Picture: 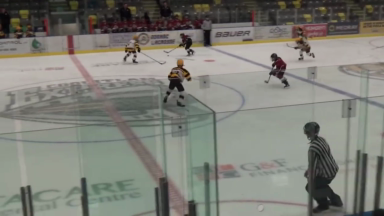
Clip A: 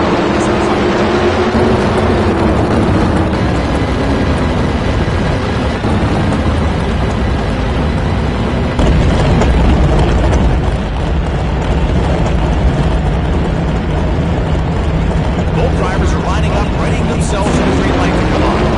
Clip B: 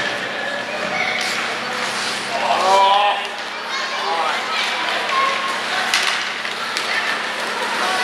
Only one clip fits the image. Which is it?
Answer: B